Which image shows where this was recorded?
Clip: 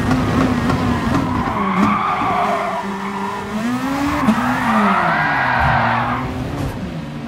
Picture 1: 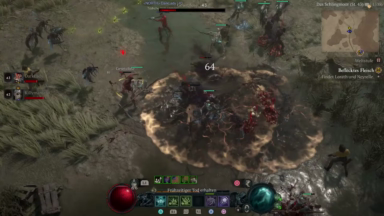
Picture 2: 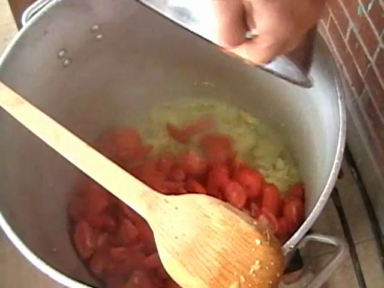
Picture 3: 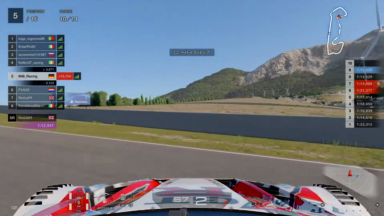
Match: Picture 3